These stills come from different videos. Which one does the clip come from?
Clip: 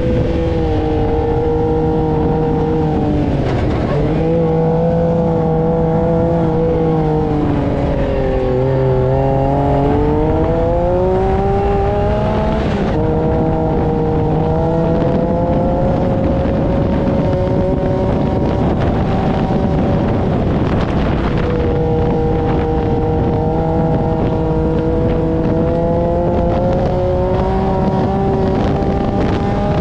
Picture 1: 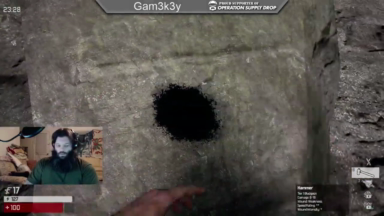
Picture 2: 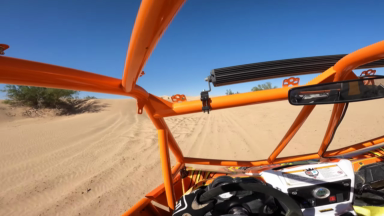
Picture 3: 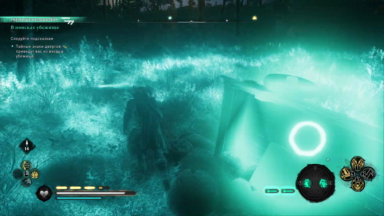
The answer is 2